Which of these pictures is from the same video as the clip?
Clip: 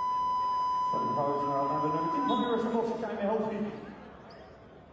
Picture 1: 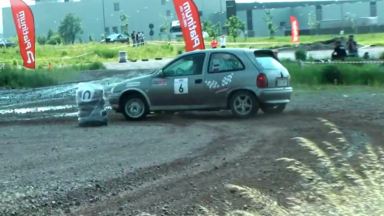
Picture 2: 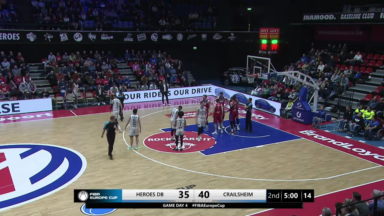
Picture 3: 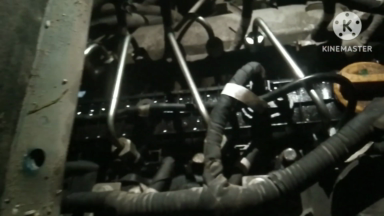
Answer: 2